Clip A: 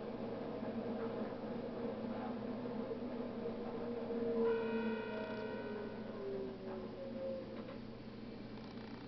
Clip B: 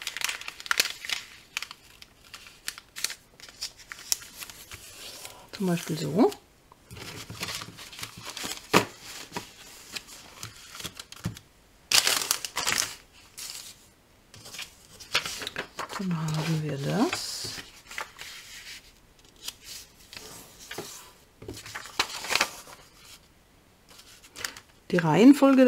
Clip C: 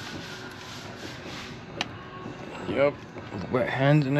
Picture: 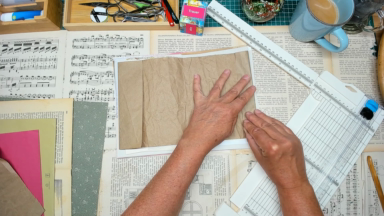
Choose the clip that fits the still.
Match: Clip B